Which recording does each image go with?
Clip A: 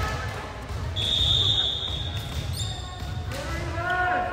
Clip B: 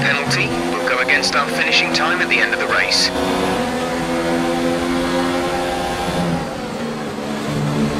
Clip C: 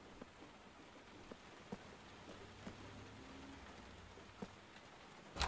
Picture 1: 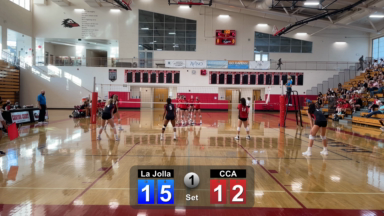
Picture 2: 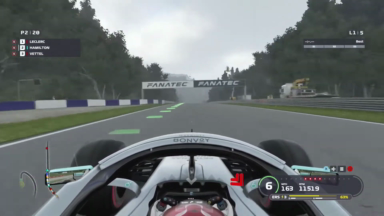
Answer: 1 A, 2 B